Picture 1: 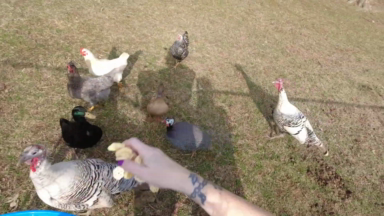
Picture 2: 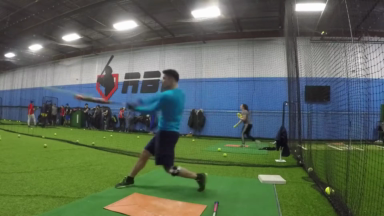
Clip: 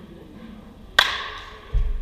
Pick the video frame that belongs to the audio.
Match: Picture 2